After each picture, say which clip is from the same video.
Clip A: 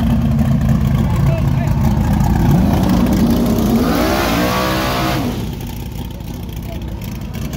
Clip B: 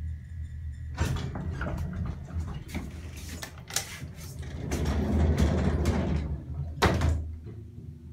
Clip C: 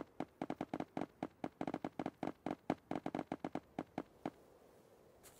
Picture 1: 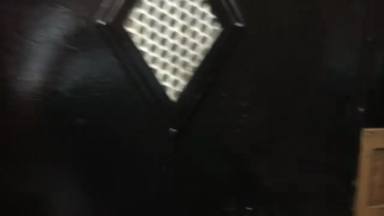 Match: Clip B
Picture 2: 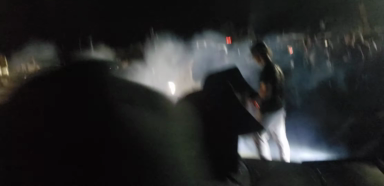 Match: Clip A